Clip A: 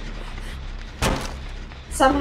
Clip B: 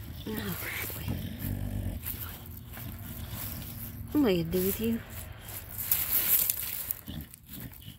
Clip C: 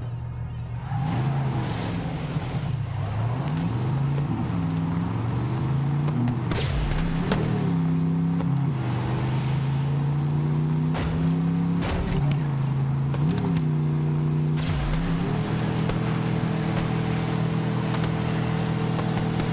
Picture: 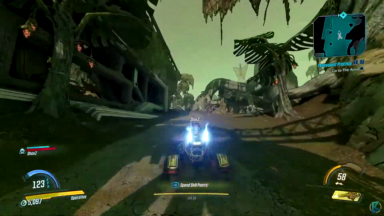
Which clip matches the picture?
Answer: C